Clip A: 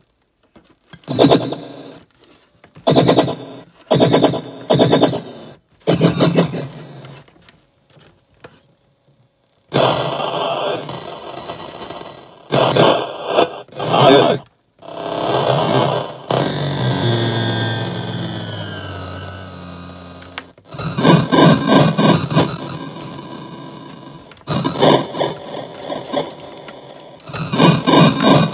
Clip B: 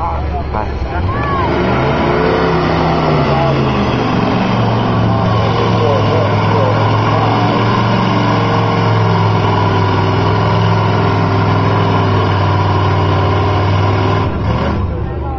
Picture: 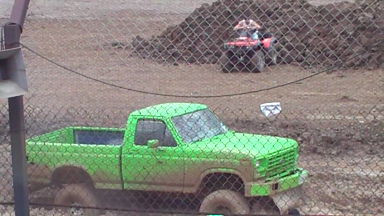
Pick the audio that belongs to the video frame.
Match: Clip B